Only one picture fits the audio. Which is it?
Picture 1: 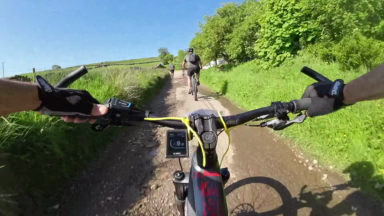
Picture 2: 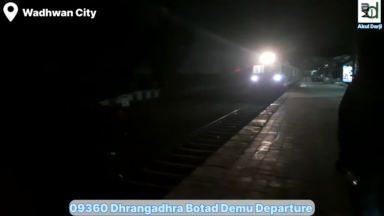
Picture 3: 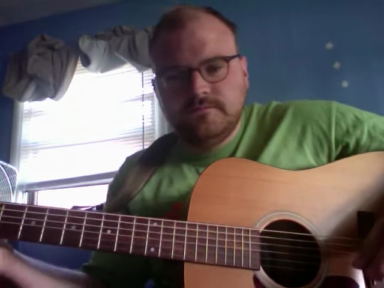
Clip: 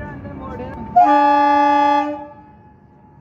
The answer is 2